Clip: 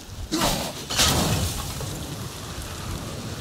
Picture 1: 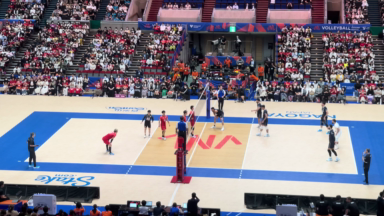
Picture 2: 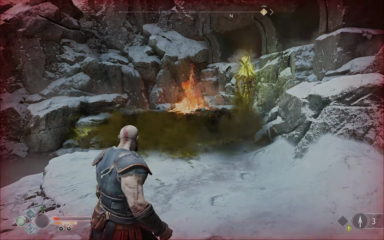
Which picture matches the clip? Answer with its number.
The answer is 2